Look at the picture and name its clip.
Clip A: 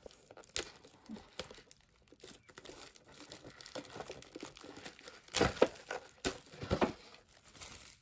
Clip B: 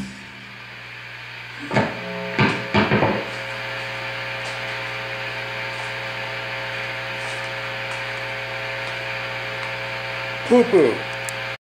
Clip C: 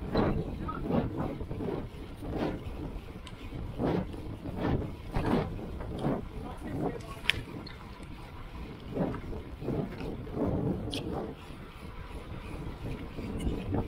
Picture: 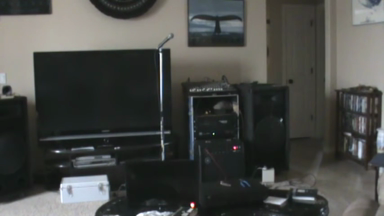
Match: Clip B